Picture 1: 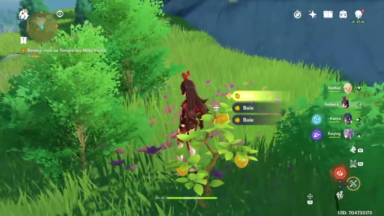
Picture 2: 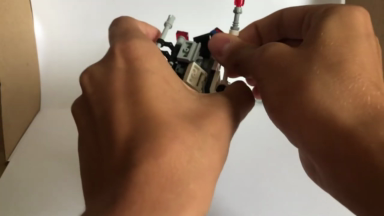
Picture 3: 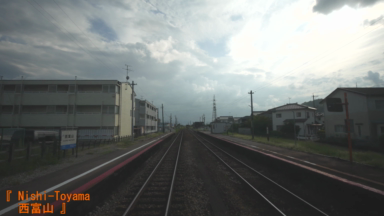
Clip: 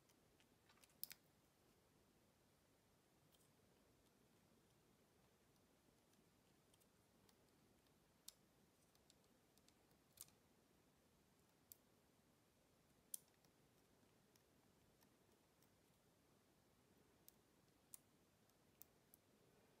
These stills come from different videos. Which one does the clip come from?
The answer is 2